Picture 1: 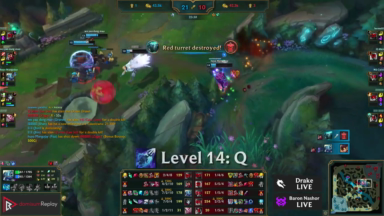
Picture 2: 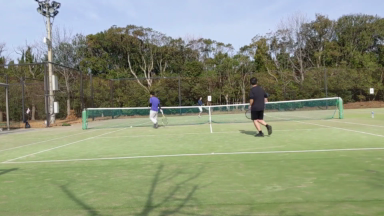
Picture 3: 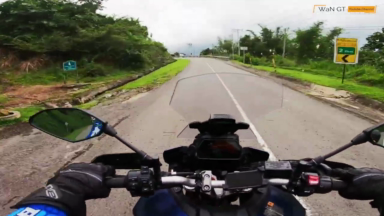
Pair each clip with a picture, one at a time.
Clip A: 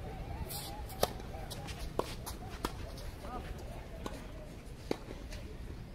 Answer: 2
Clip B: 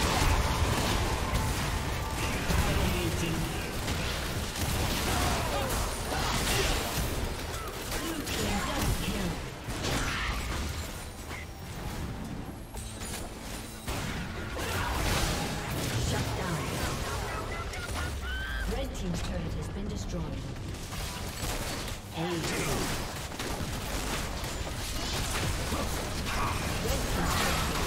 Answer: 1